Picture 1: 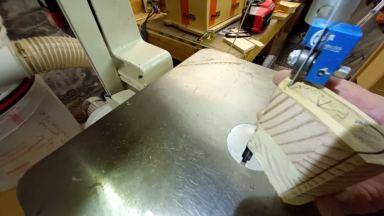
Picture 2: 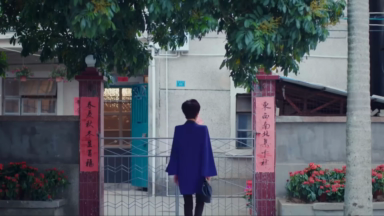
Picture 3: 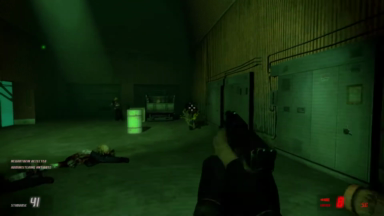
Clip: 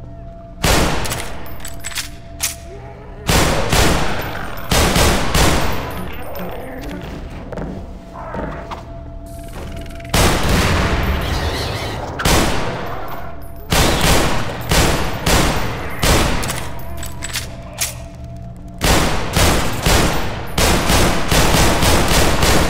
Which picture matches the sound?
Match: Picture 3